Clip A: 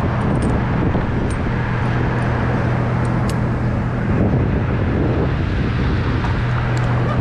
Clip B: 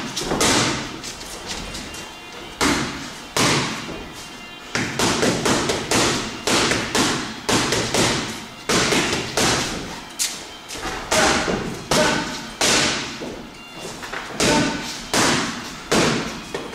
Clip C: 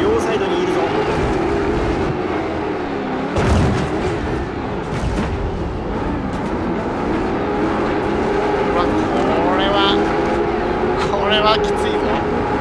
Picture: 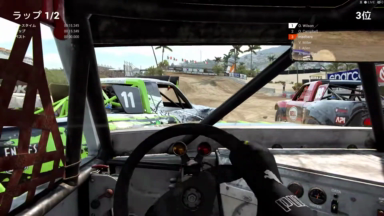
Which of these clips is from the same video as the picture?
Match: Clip C